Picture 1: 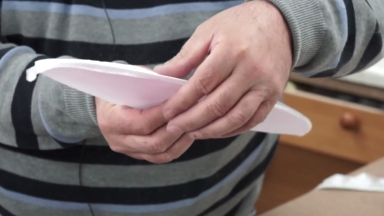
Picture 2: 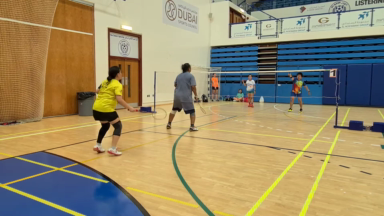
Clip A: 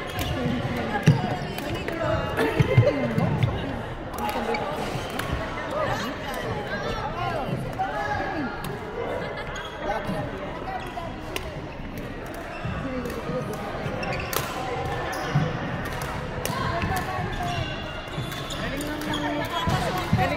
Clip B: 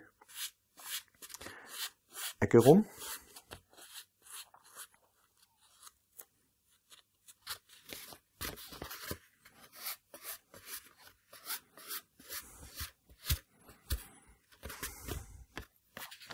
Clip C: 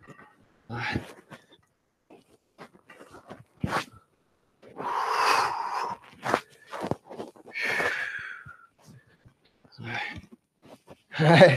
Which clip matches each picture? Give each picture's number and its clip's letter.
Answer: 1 B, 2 A